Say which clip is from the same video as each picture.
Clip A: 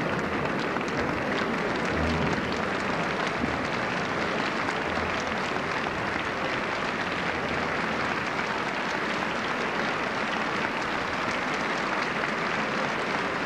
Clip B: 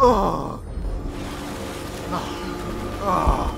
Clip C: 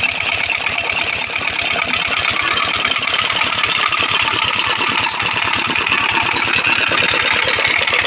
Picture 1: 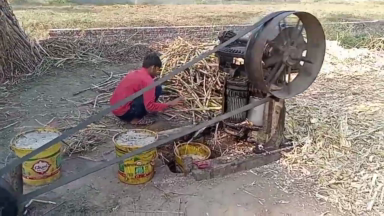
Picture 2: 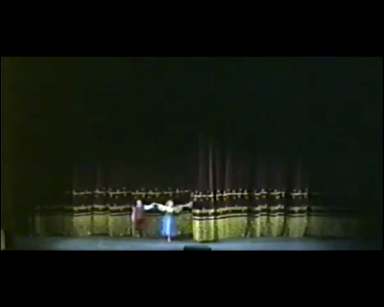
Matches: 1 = C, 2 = A